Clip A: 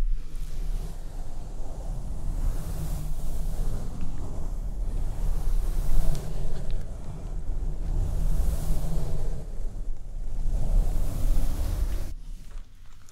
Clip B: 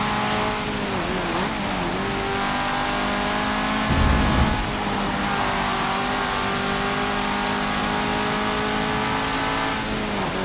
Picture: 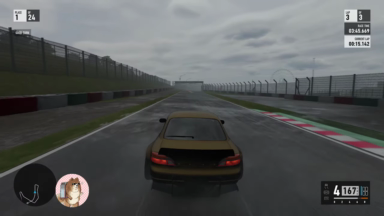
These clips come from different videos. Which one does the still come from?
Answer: B